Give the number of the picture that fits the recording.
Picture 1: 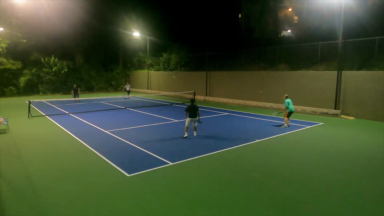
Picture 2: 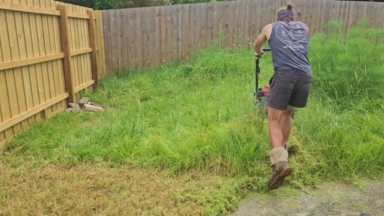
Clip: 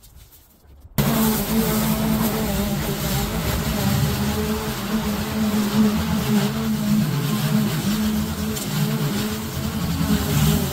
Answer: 2